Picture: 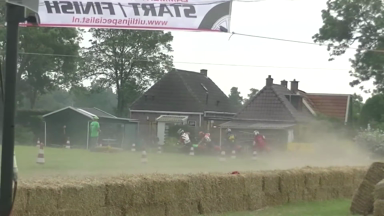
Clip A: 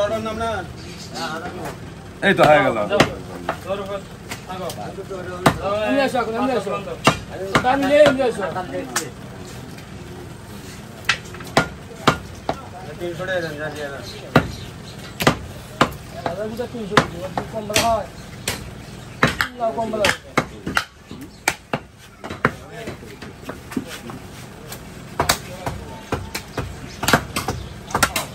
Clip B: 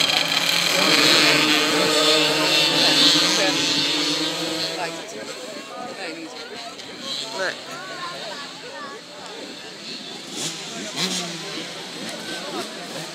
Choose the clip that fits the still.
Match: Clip B